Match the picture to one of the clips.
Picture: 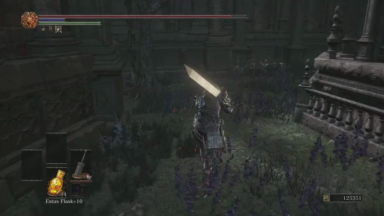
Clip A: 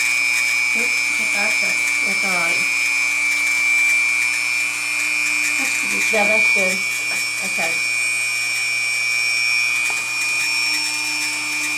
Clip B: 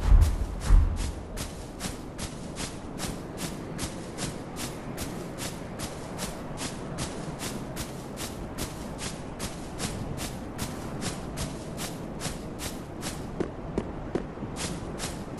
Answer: B